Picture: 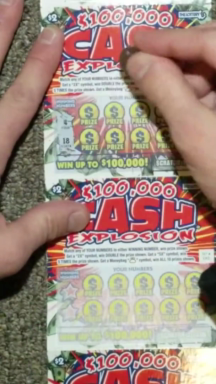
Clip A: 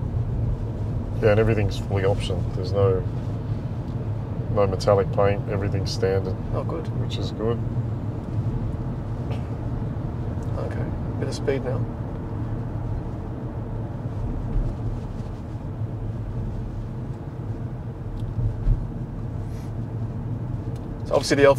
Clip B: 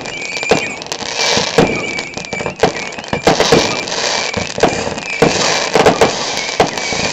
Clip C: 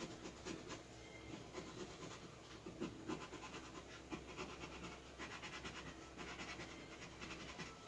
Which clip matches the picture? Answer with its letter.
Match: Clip C